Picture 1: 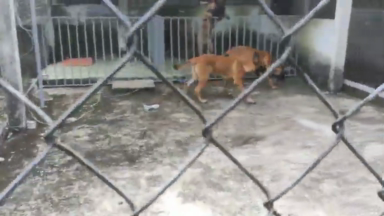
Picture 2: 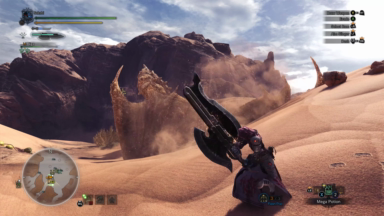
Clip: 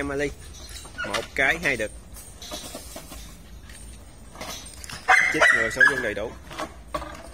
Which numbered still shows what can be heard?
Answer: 1